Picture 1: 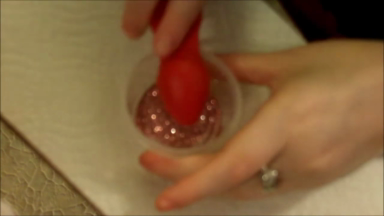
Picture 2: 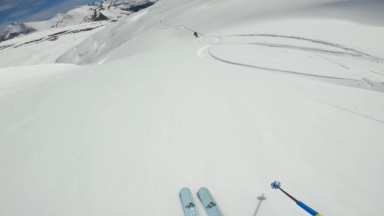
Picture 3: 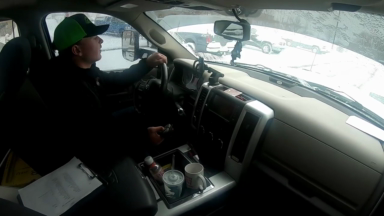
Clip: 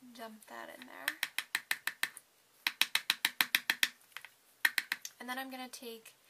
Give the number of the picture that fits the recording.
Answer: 1